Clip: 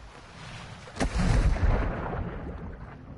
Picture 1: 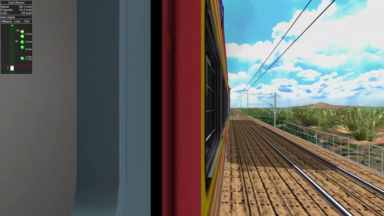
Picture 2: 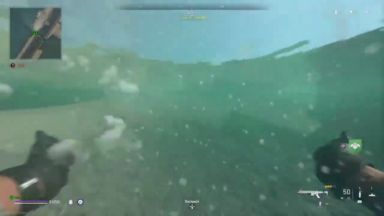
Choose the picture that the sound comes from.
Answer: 2